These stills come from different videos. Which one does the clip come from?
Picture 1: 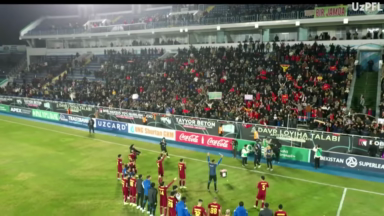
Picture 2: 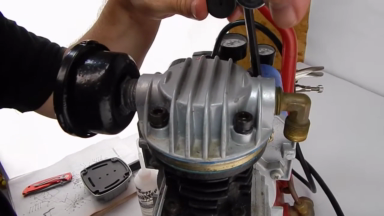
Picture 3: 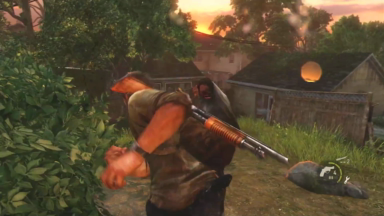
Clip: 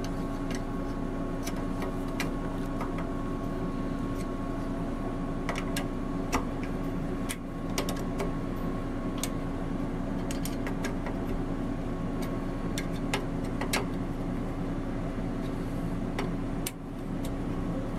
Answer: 2